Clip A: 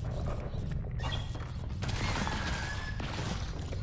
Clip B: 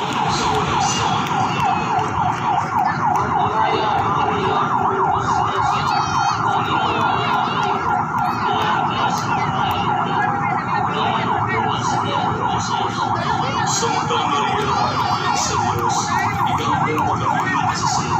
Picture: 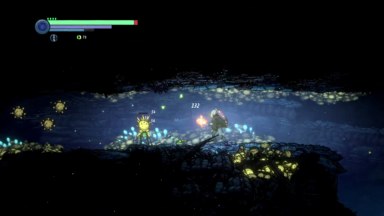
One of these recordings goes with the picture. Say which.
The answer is A